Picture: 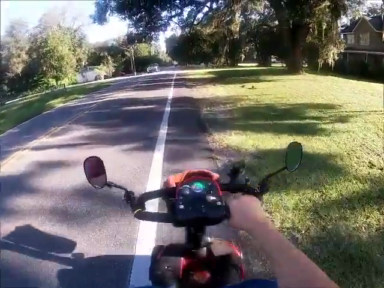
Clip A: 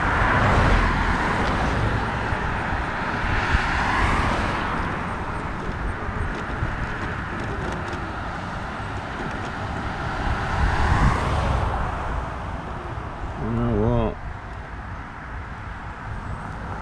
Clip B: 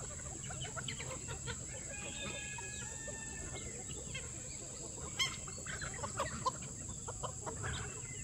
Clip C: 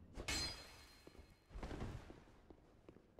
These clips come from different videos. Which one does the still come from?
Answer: A